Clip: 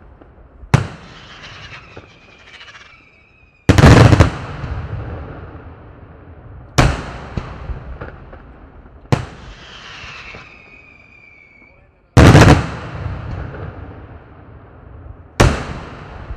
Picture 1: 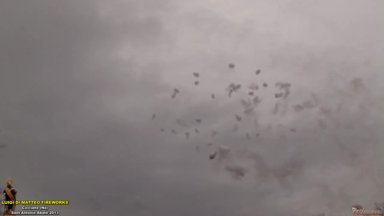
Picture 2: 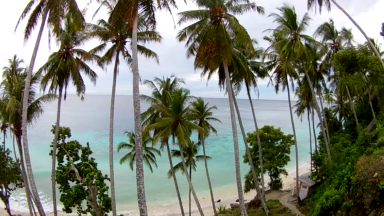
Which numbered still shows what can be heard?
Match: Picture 1